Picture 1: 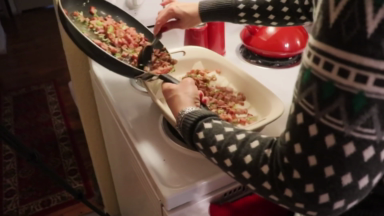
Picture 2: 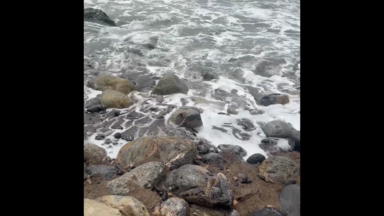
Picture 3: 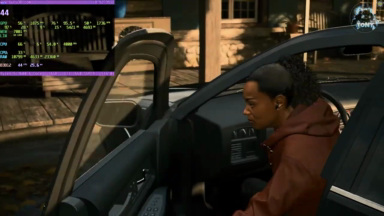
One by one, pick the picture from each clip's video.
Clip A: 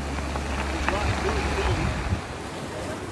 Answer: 2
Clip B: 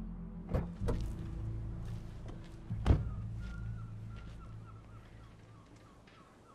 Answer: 3